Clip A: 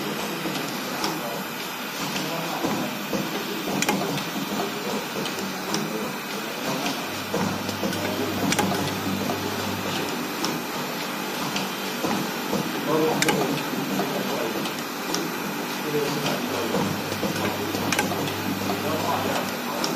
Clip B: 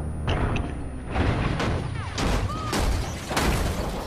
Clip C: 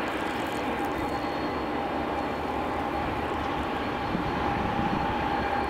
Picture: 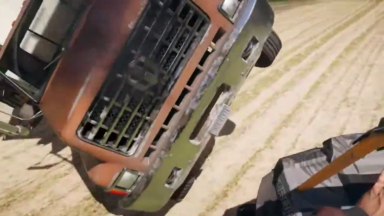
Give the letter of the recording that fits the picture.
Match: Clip B